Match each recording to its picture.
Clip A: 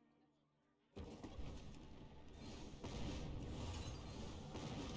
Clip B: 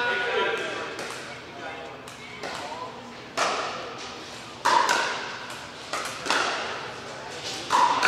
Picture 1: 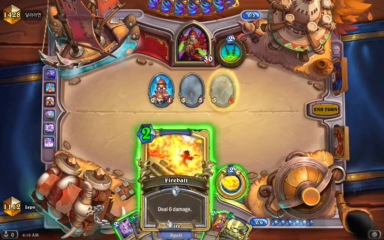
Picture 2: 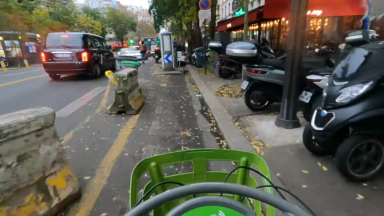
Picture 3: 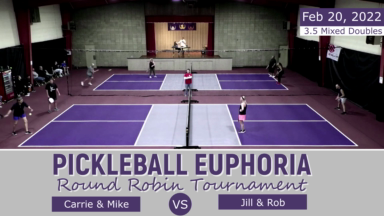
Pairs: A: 1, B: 3